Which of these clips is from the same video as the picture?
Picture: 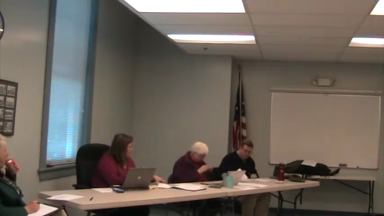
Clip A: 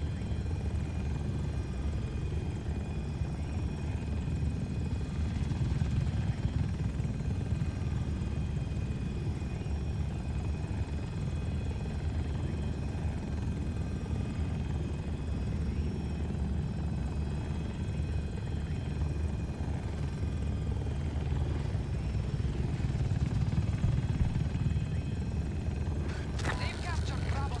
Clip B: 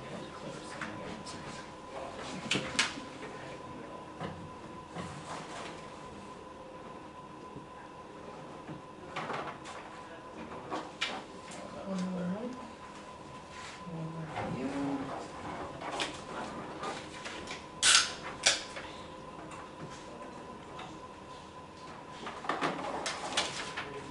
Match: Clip B